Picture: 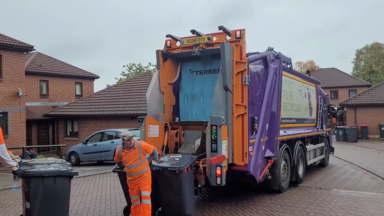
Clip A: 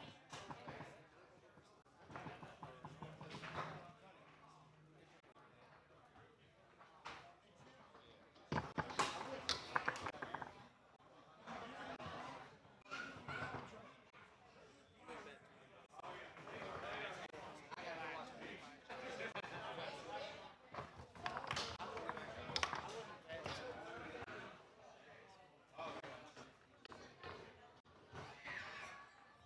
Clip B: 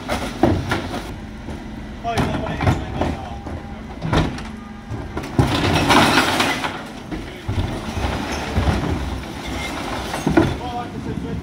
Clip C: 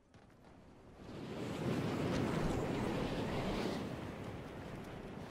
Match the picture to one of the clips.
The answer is B